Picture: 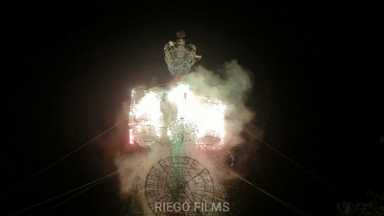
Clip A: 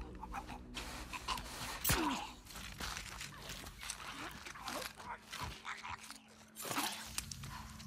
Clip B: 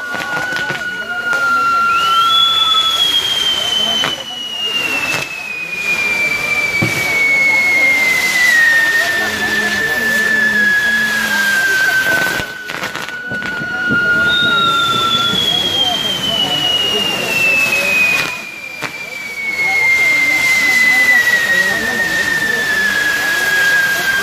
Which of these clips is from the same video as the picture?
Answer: B